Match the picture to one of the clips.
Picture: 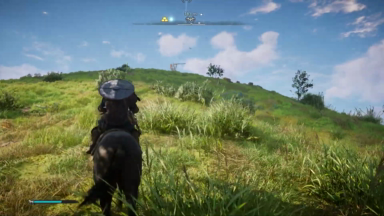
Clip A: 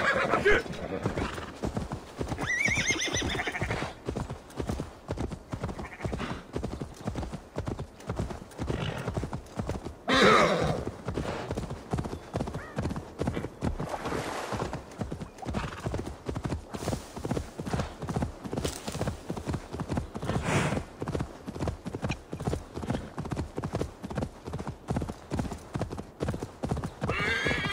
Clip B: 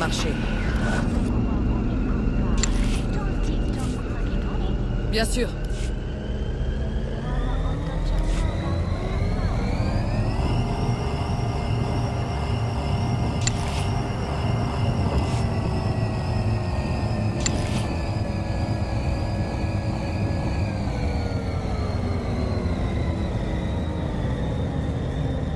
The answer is A